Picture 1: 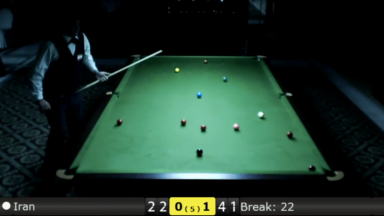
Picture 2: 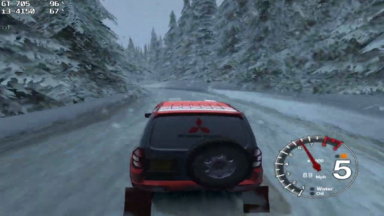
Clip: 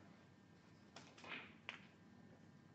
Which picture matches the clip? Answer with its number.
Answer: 1